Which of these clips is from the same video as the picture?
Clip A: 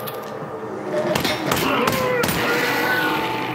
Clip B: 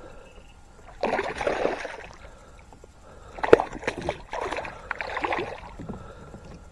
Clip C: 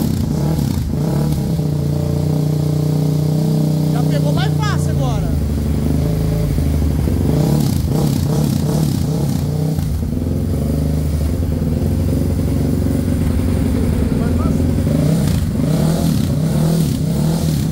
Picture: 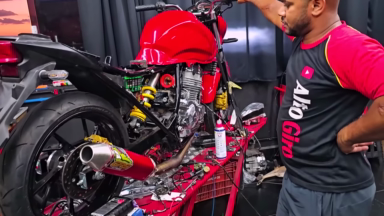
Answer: C